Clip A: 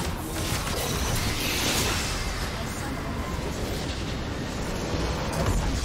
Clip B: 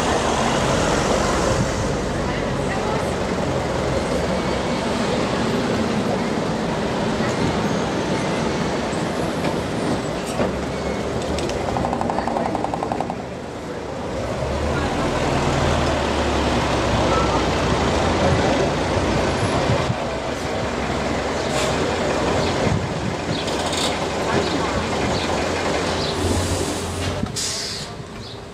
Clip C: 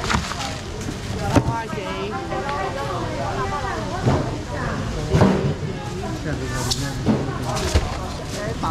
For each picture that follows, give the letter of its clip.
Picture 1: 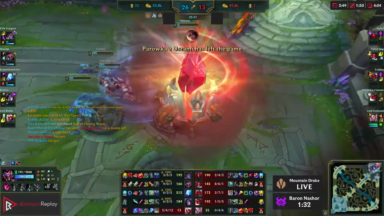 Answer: A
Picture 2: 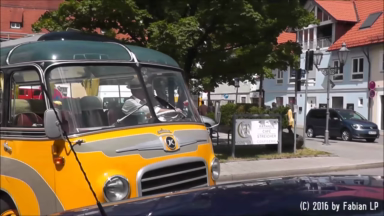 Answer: B